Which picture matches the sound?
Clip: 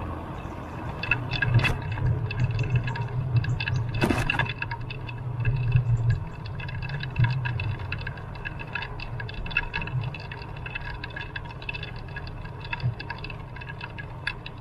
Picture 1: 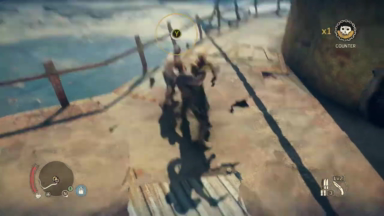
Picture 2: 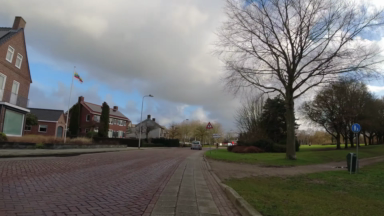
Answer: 2